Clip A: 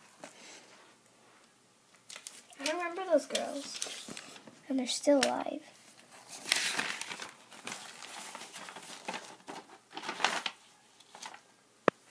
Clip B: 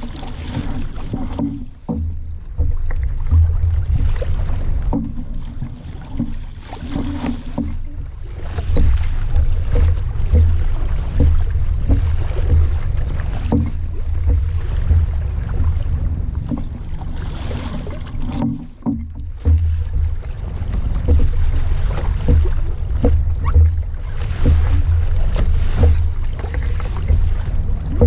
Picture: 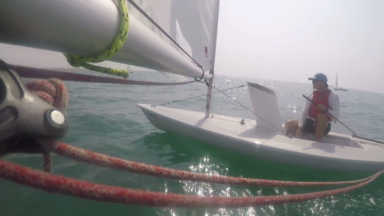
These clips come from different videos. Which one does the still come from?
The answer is B